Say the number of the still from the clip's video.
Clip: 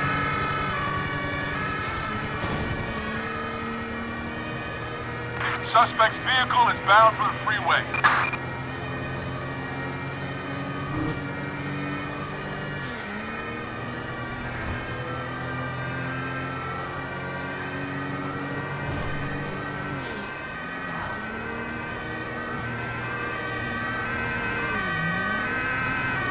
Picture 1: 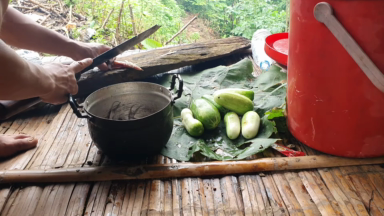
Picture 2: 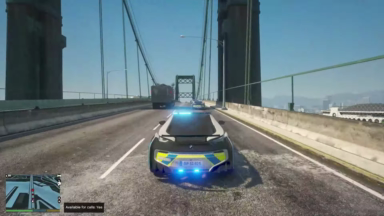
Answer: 2